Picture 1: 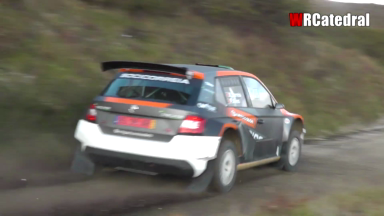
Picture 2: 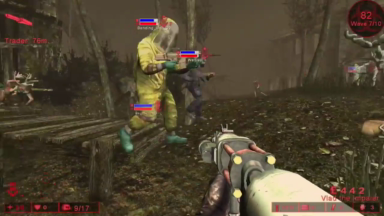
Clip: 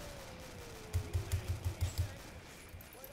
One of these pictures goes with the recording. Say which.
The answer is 2